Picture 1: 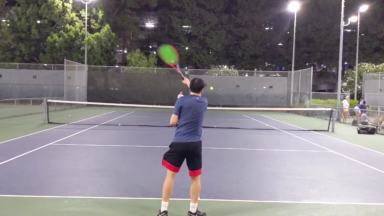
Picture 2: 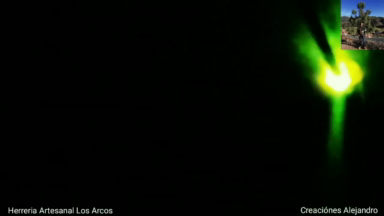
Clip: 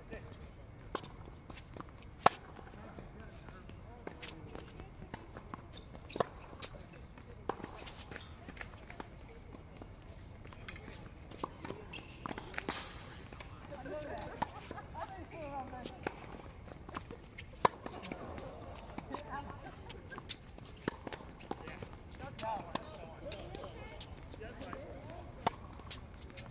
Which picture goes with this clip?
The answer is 1